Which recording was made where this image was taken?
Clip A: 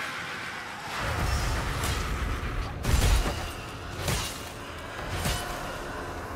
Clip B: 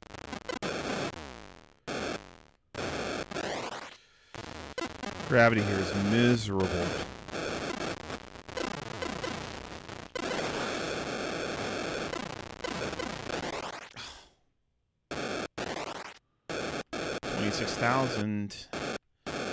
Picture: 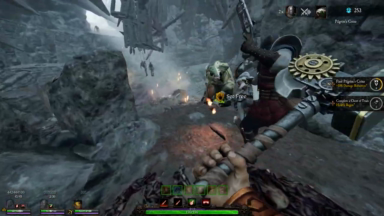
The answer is A